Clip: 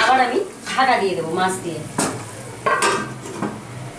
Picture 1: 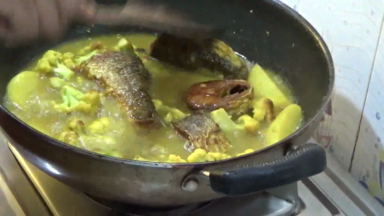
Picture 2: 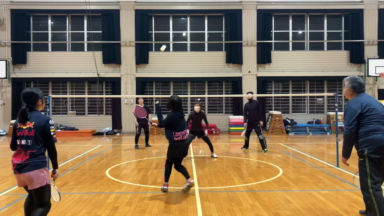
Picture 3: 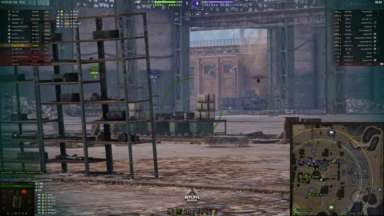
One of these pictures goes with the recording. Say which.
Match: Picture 1